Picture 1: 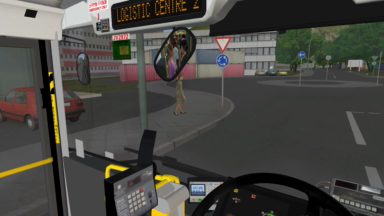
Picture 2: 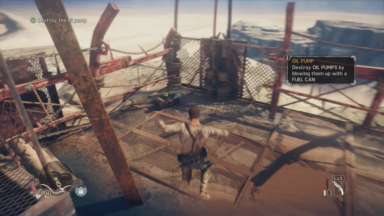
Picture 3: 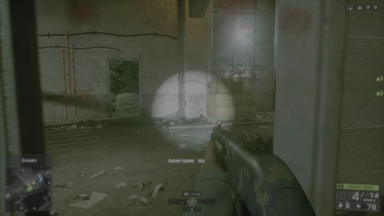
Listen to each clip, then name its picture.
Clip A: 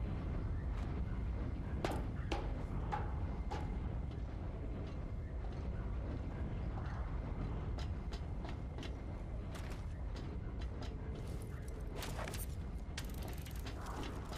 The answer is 2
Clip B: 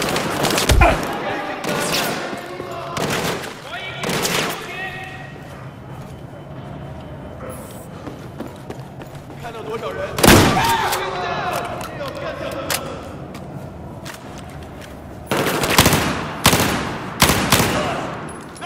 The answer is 3